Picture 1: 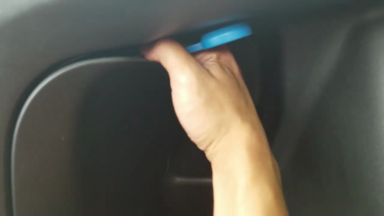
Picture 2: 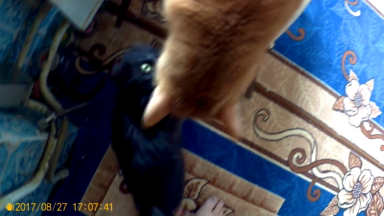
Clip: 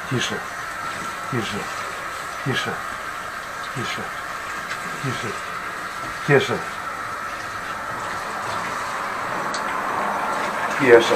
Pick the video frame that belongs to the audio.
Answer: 2